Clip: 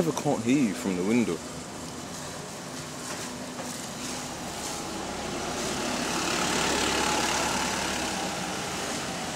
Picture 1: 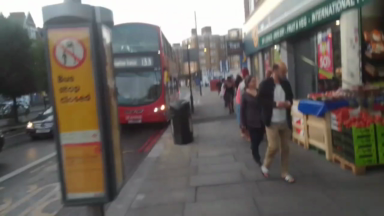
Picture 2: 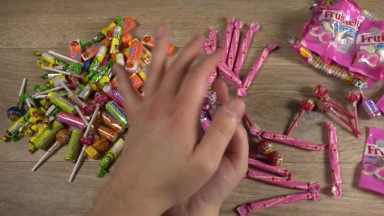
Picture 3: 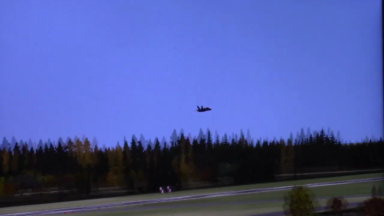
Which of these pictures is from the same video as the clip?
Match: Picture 1